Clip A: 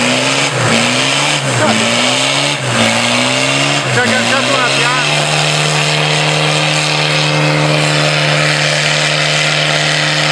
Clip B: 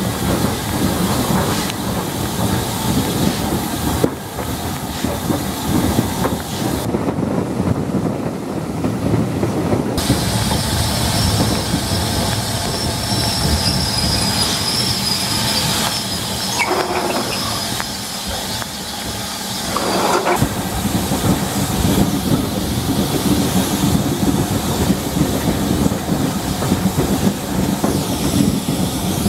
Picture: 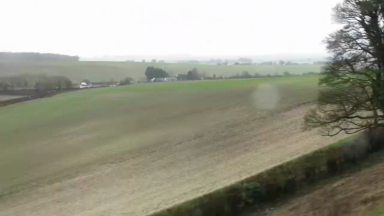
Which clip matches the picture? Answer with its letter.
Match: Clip B